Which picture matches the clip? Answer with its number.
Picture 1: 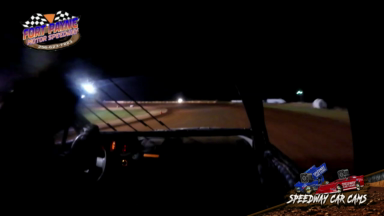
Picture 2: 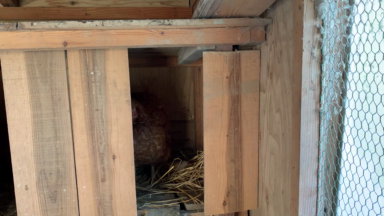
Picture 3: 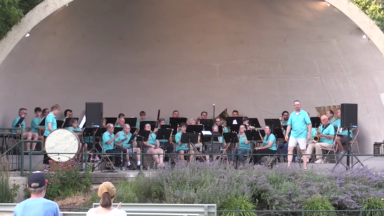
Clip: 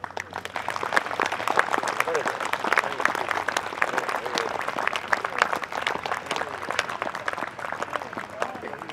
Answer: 3